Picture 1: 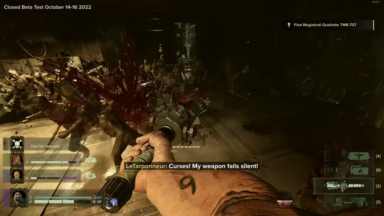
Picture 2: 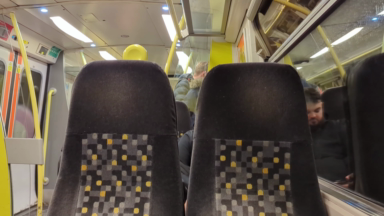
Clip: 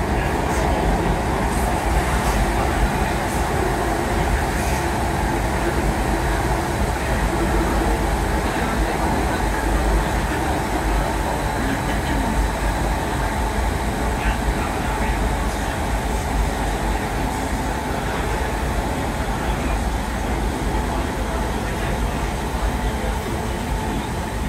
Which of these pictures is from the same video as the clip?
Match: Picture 2